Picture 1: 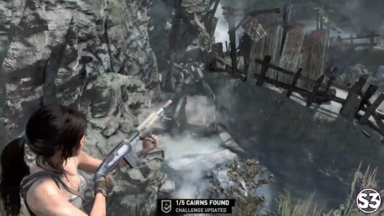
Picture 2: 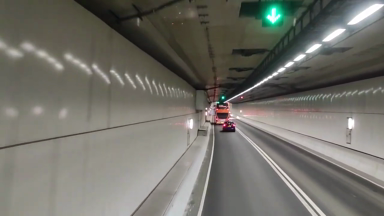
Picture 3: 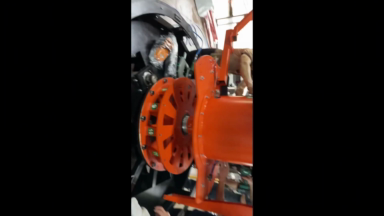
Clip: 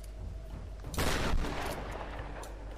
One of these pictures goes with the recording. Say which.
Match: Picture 1